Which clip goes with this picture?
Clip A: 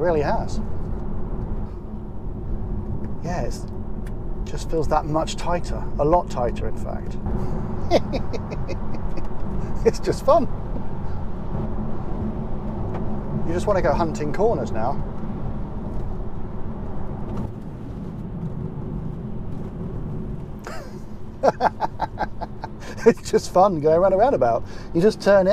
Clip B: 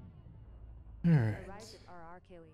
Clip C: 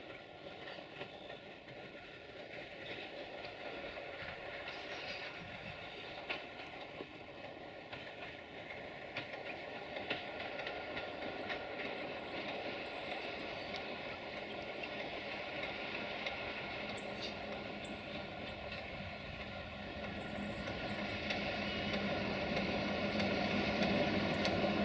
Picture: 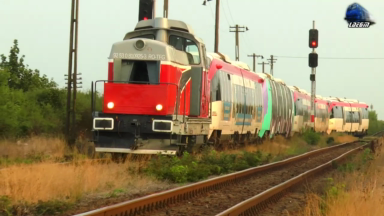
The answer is C